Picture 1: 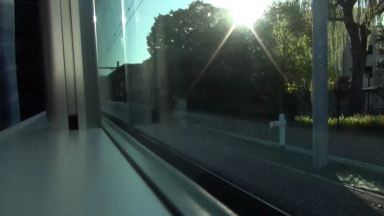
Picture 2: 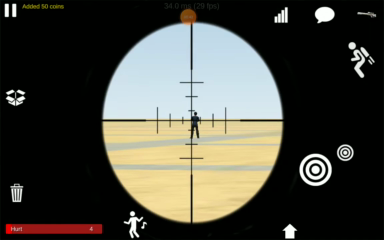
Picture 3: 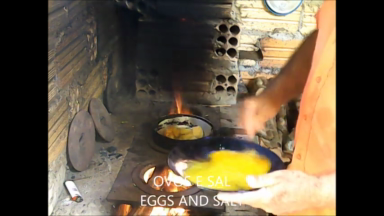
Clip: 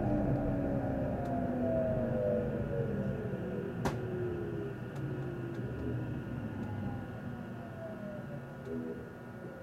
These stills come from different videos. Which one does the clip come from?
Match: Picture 1